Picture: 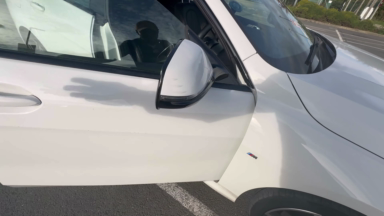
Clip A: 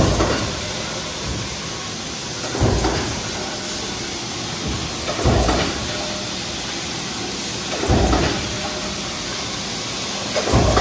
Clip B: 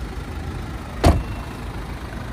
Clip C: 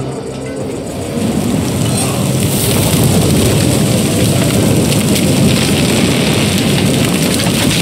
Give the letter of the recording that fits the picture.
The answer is B